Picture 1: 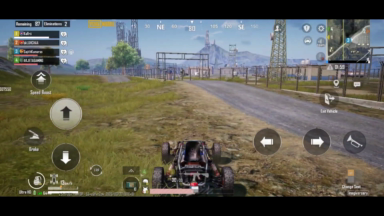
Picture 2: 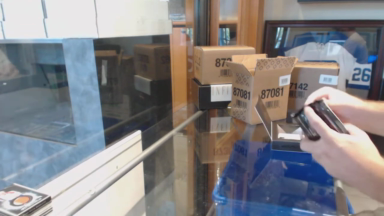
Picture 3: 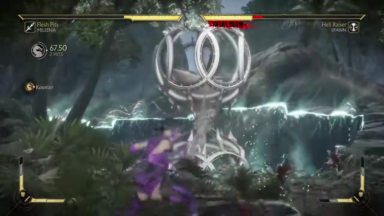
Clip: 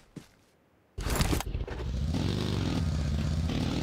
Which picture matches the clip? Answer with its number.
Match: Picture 1